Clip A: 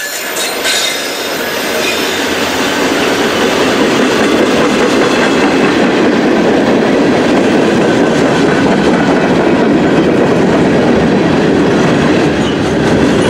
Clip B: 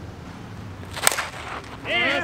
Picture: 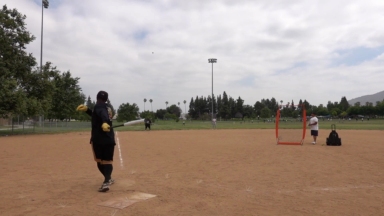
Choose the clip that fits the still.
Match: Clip B